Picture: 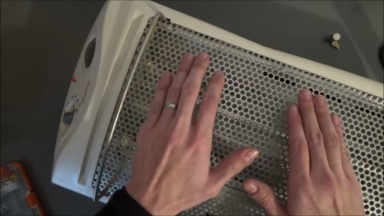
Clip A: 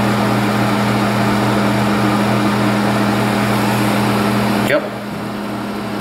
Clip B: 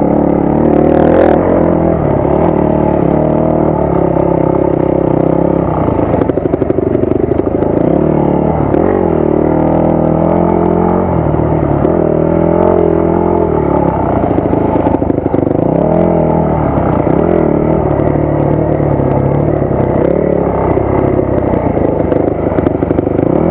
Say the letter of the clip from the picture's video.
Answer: A